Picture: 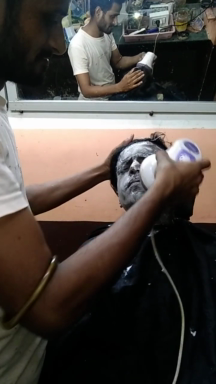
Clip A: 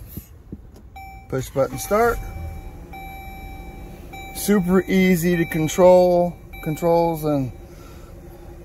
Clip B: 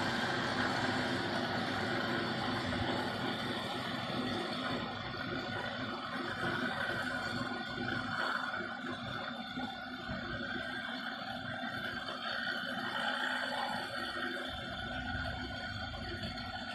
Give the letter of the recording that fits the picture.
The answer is B